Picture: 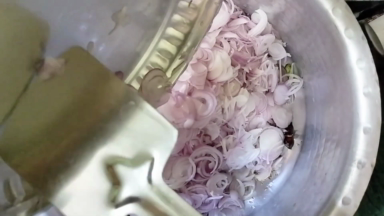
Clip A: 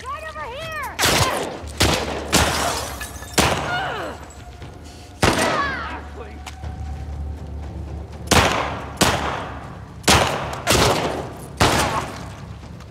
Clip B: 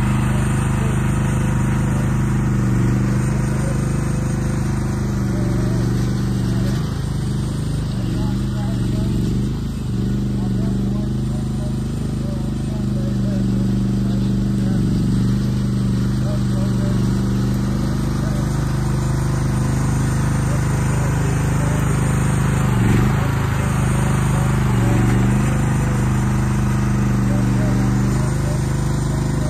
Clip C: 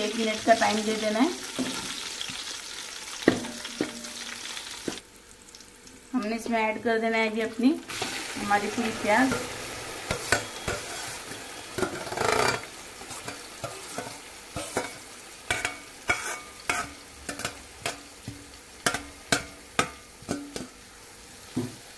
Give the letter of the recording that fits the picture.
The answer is C